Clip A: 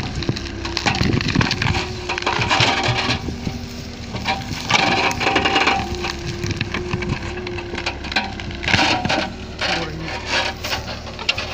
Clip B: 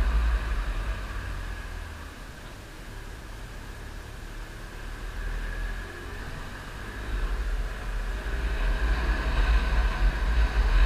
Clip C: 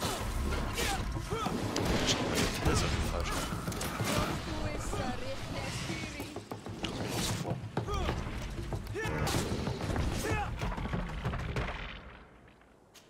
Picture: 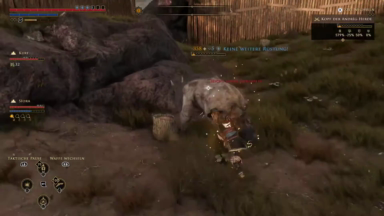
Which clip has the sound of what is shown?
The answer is C